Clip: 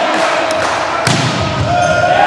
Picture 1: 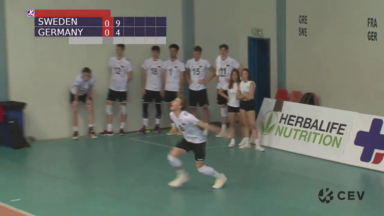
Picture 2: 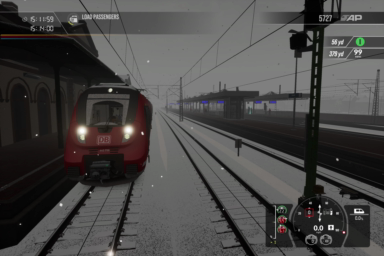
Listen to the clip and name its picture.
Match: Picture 1